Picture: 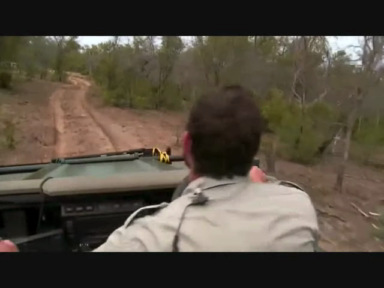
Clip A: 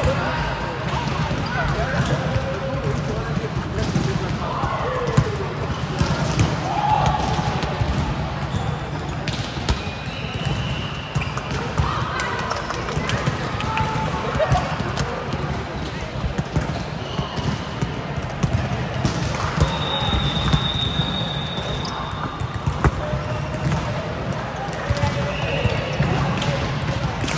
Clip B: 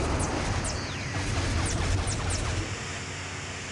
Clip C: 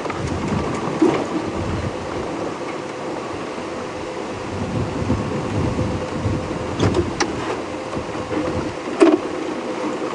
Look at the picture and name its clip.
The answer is C